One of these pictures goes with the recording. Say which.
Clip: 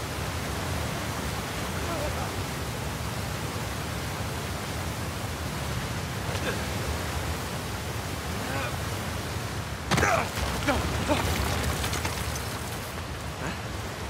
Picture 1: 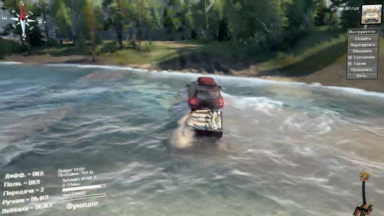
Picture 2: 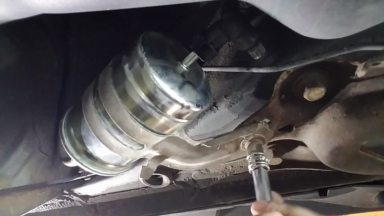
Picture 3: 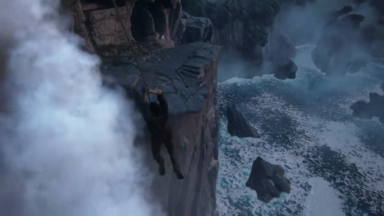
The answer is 3